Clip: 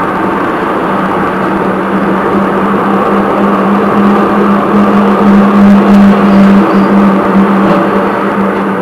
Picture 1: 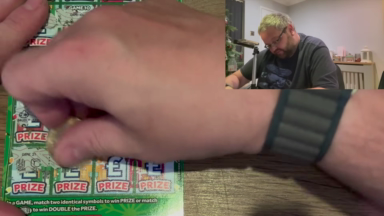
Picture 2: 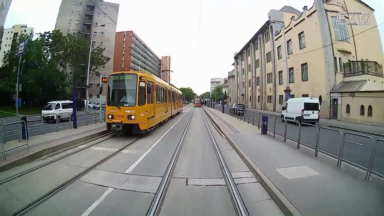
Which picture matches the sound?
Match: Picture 2